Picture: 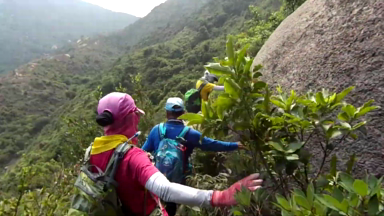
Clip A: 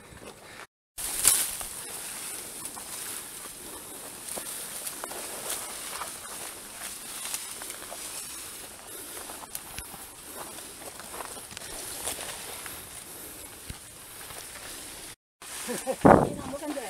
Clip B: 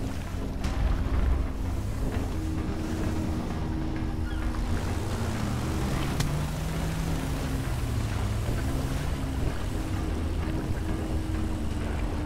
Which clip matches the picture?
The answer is A